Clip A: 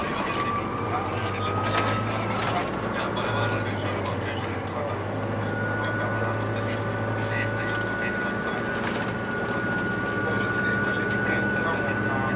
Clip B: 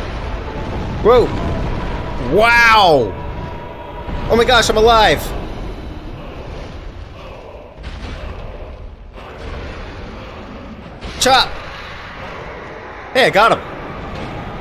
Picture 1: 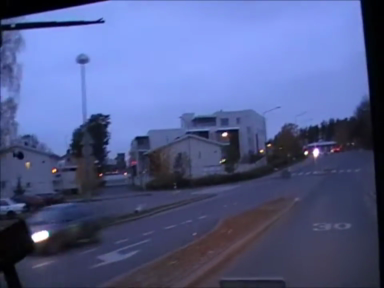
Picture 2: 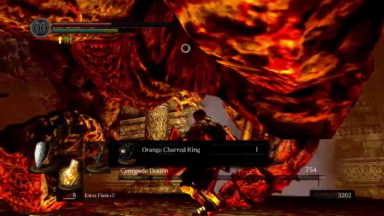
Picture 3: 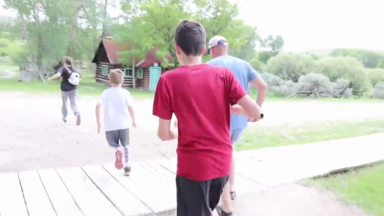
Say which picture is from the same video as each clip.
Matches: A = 1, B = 2